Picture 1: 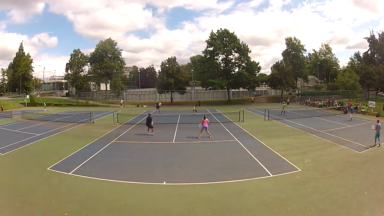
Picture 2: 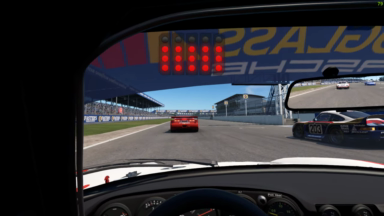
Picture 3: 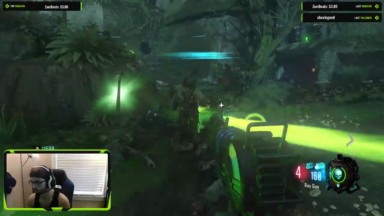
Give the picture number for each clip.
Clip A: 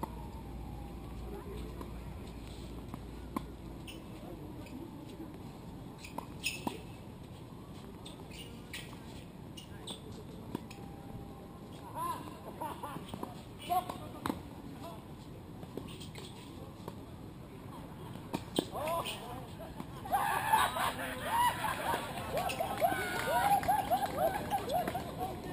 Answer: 1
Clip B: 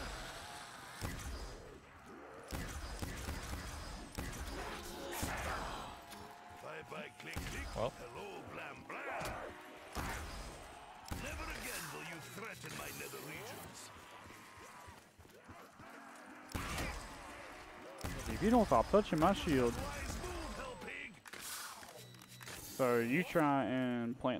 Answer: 3